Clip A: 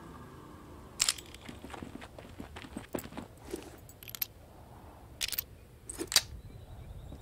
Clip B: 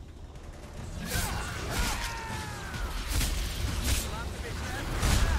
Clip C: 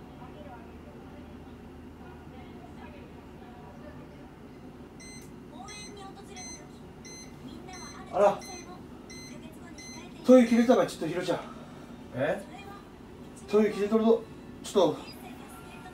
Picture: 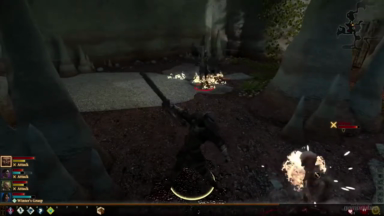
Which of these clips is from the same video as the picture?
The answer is B